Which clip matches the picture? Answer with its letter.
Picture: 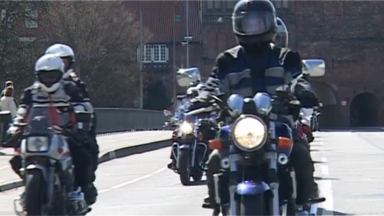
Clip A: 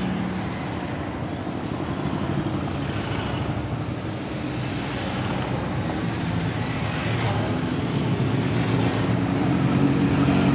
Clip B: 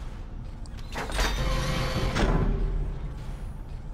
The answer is A